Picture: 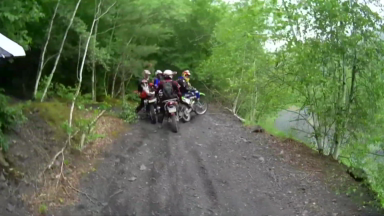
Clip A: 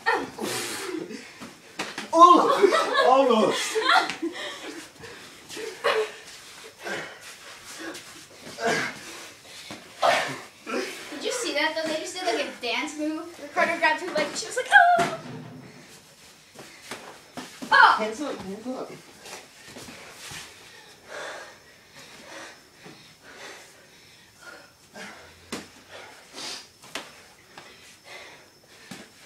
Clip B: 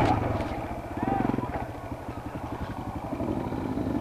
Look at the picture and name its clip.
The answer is B